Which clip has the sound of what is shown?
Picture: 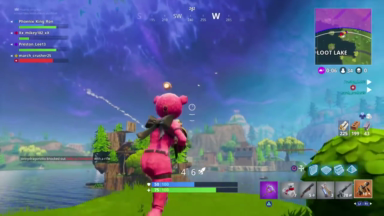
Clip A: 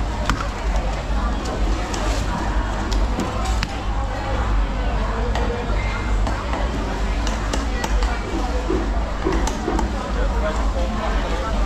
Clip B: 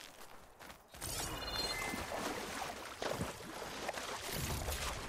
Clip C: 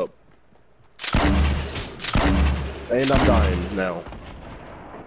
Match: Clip C